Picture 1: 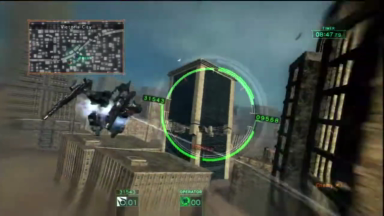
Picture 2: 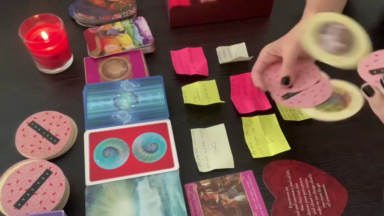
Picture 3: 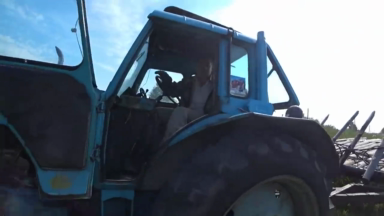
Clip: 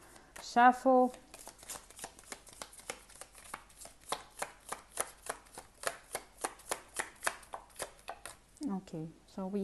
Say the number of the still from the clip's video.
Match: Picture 2